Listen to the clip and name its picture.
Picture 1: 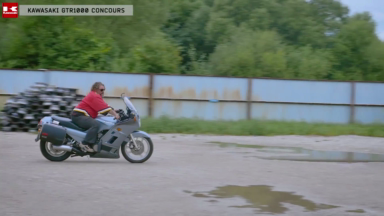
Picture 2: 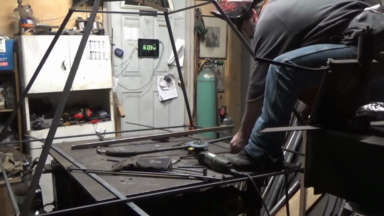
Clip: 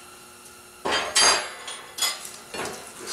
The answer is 2